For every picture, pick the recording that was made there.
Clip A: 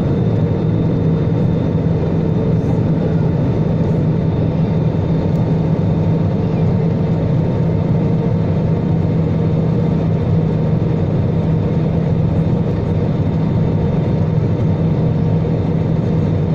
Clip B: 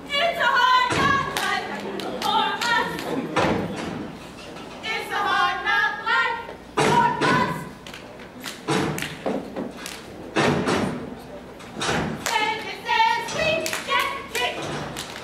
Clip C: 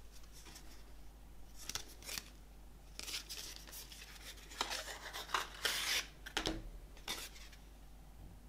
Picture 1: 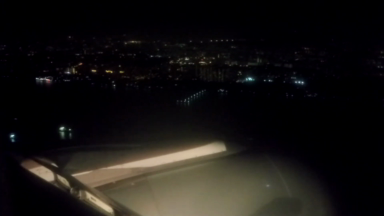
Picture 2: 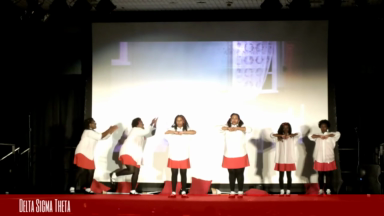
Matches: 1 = A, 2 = B